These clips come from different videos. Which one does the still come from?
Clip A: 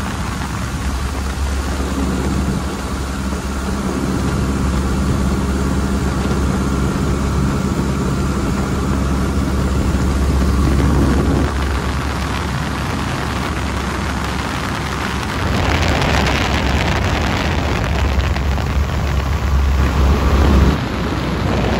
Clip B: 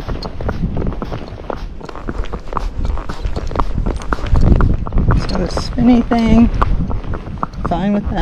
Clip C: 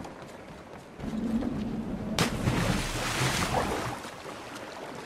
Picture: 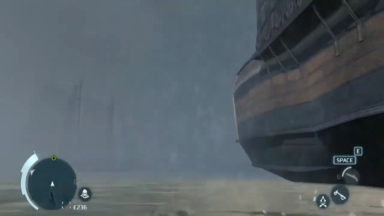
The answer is C